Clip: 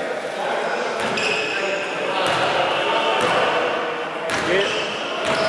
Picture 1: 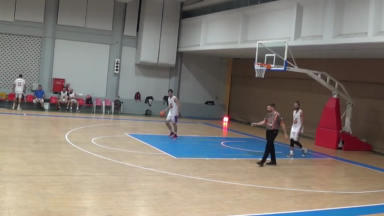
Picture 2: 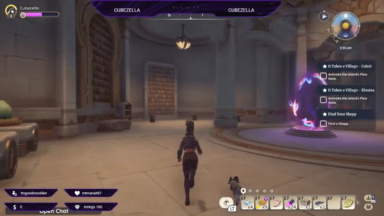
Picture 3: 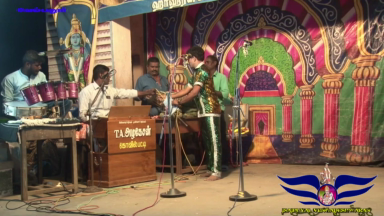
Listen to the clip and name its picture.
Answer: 1